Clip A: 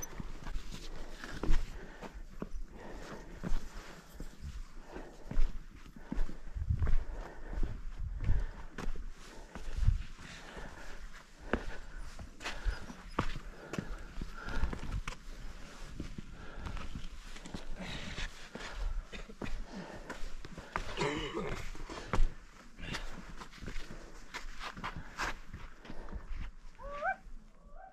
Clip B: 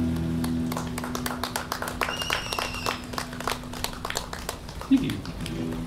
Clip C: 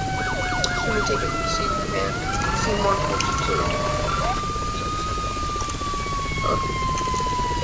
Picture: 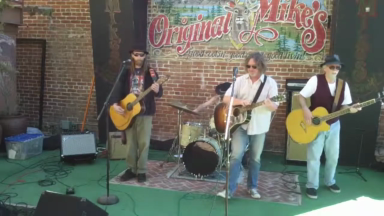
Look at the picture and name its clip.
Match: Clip B